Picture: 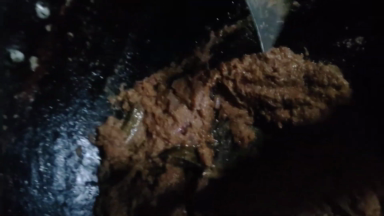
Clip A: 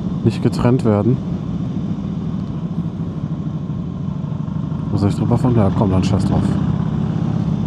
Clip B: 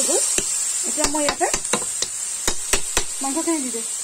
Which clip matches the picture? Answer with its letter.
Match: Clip B